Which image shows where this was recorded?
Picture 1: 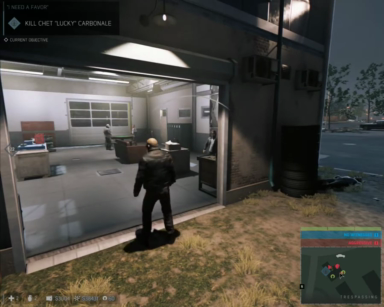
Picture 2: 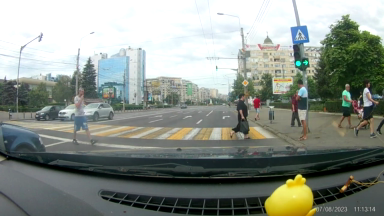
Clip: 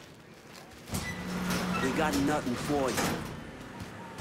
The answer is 1